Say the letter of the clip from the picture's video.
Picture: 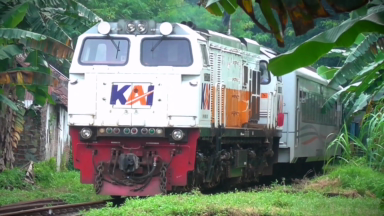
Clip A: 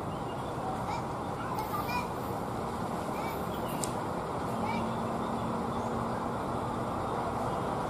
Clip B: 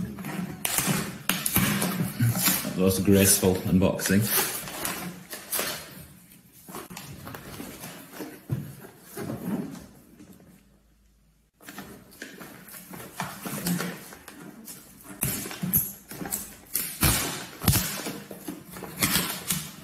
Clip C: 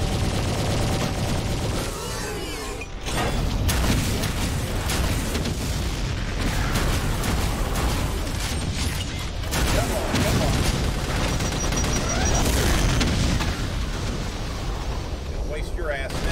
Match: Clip A